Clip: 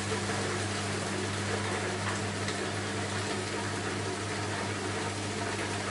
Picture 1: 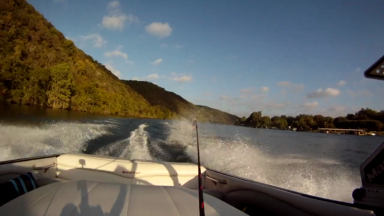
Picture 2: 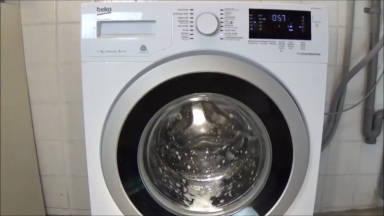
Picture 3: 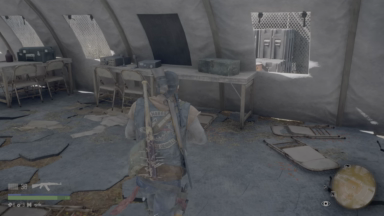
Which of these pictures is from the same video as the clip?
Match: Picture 2